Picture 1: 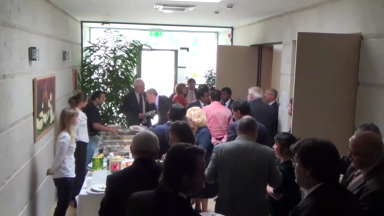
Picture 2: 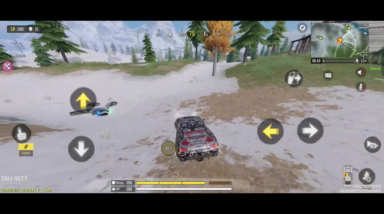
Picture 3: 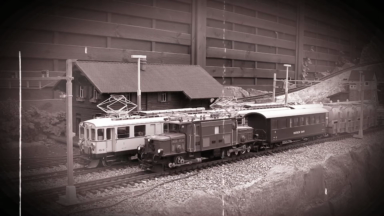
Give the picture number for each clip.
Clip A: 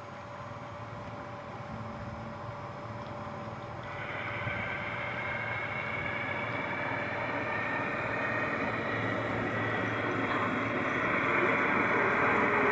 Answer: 3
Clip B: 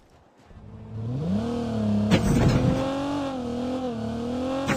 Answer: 2